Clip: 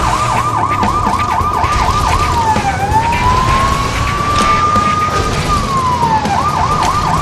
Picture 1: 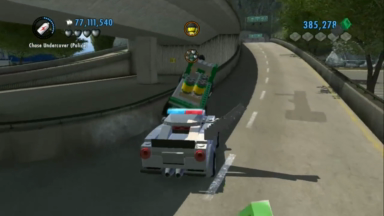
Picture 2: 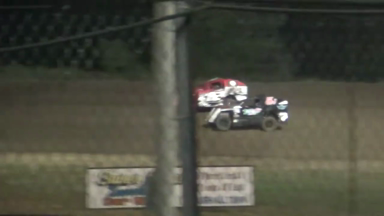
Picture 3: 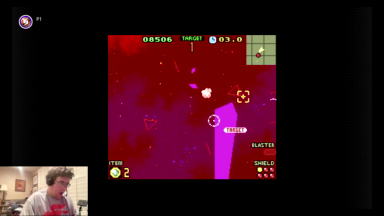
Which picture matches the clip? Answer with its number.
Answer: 1